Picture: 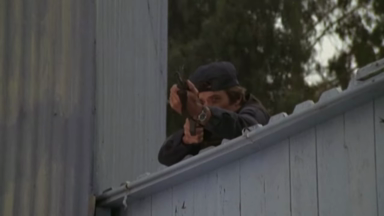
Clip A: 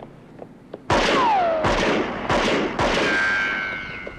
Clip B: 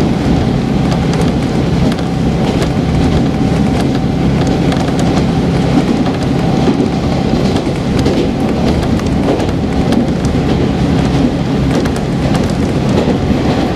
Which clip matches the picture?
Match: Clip A